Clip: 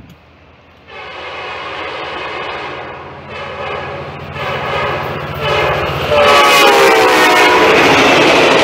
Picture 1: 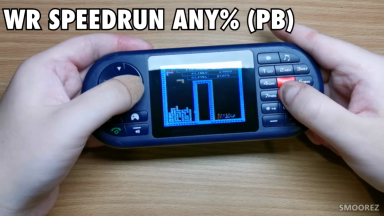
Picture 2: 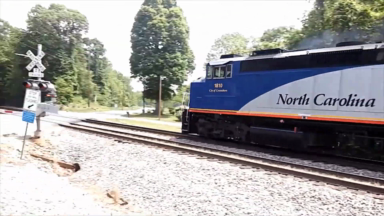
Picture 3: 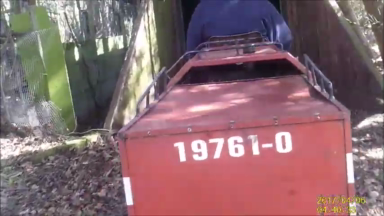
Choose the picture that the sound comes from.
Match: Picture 2